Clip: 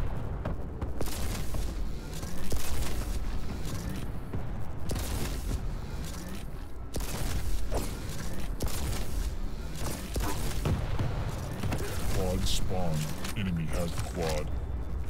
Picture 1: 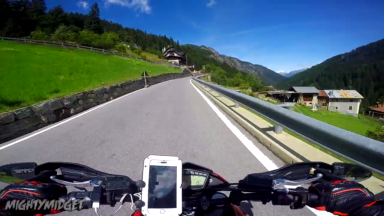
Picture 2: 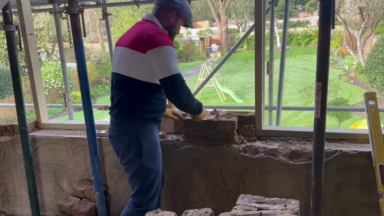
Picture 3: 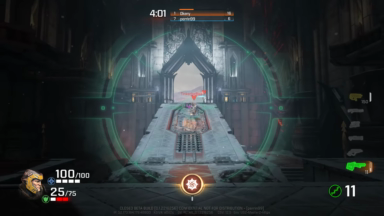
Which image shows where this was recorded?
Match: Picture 3